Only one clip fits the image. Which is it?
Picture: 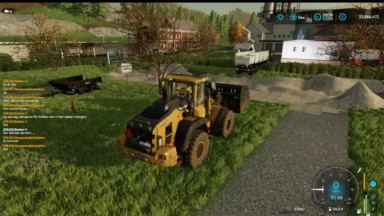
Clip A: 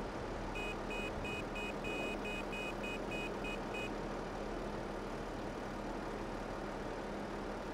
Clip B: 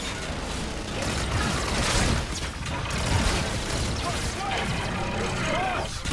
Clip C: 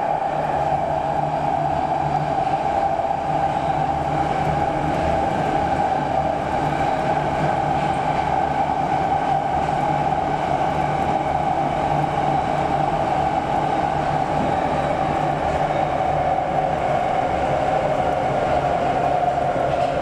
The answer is A